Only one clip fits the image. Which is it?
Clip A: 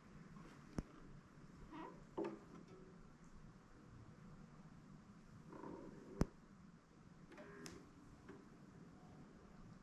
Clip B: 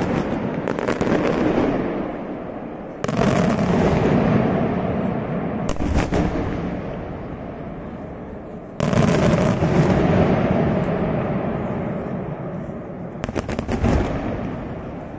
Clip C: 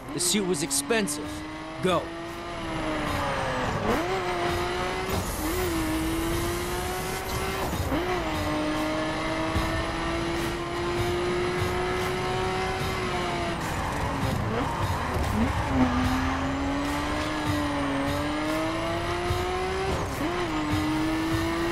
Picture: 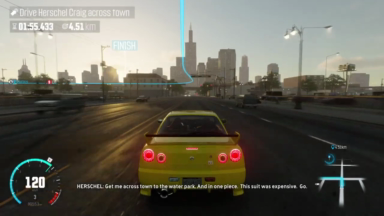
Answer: C